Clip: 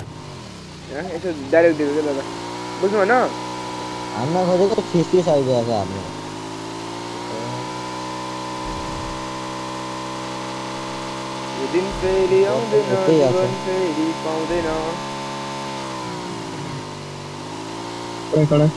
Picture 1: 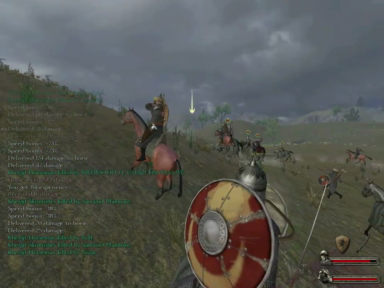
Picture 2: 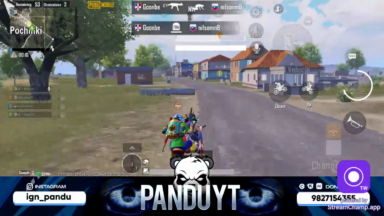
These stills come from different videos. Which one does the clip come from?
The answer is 2